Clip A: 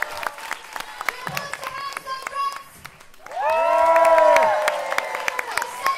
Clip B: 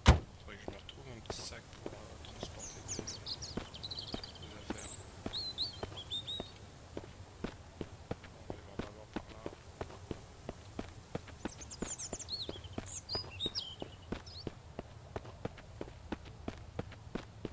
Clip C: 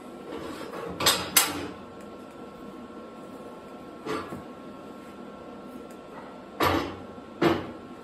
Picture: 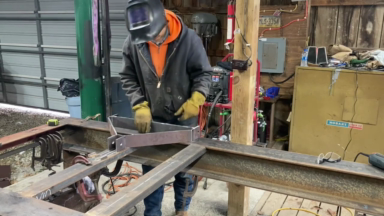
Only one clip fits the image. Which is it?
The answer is C